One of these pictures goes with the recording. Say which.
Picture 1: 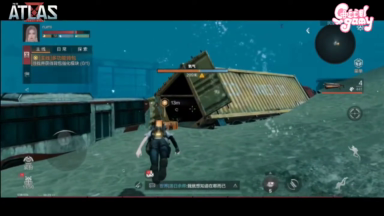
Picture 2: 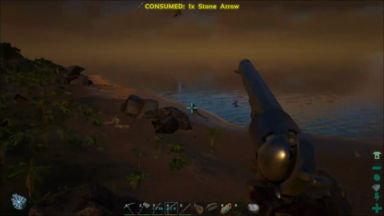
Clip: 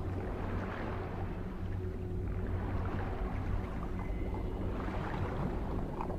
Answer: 1